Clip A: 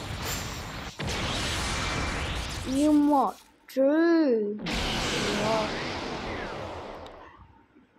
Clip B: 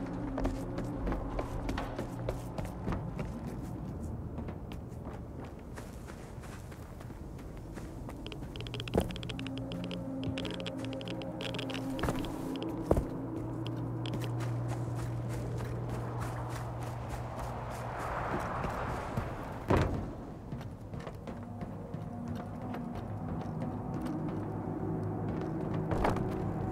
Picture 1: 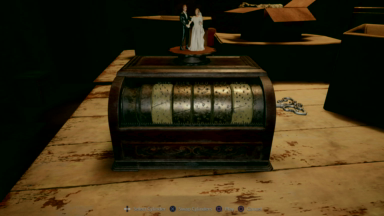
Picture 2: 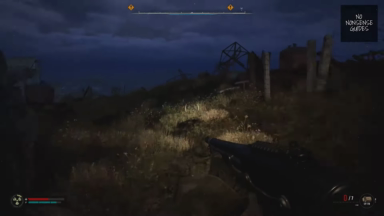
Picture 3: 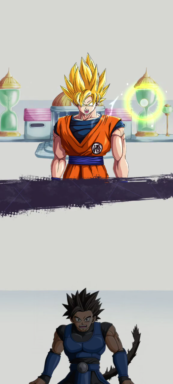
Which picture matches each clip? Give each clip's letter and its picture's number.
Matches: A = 3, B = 2